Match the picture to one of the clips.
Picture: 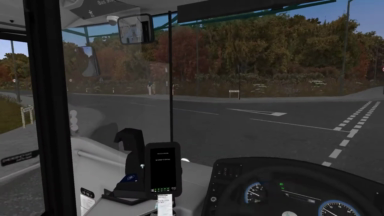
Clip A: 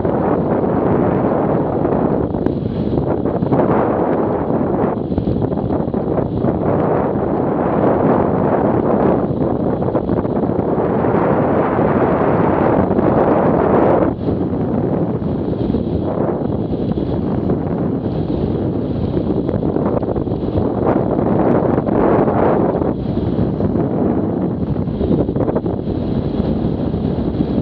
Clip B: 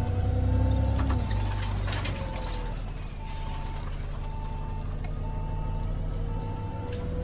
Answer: B